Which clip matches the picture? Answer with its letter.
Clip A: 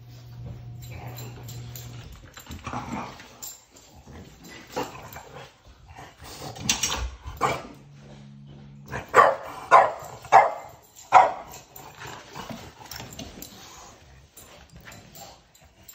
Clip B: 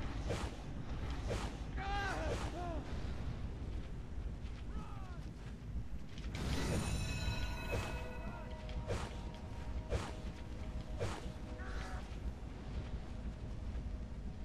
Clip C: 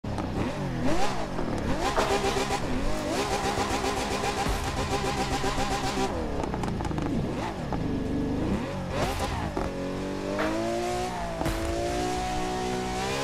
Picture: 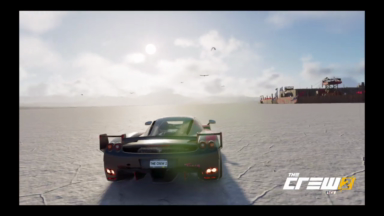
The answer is C